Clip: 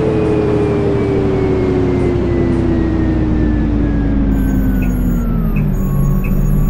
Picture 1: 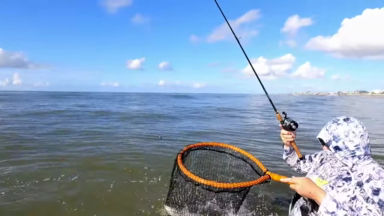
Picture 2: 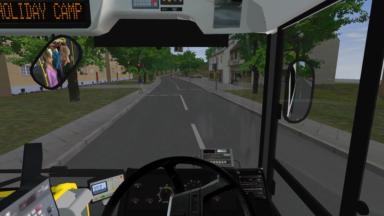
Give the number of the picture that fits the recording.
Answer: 2